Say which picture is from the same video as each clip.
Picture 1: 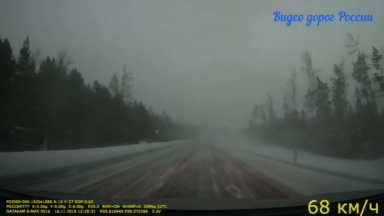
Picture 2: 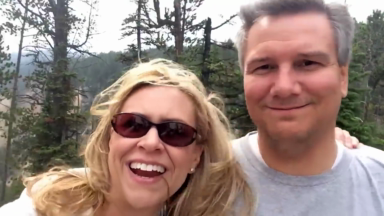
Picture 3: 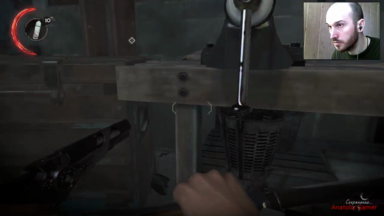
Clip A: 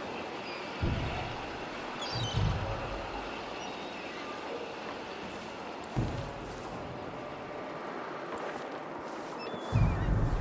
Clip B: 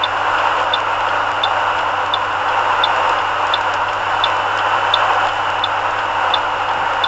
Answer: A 3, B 1